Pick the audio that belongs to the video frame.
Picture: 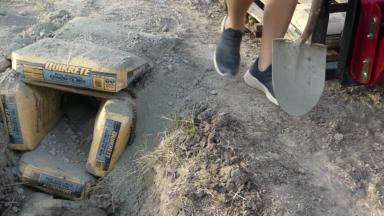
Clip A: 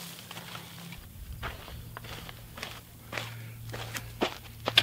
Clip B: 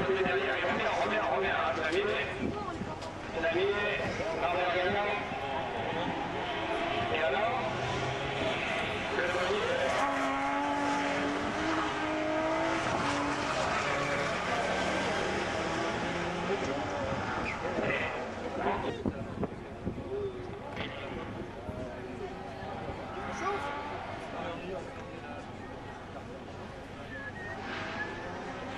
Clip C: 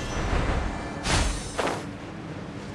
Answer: A